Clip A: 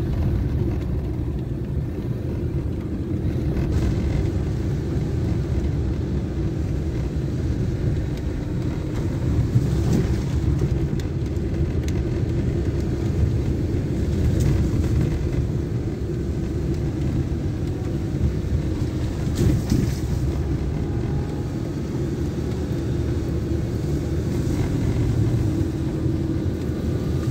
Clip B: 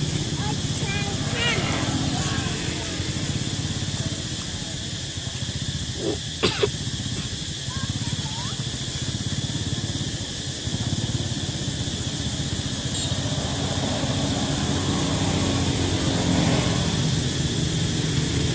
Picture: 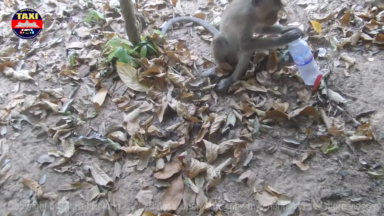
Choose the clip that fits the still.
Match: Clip B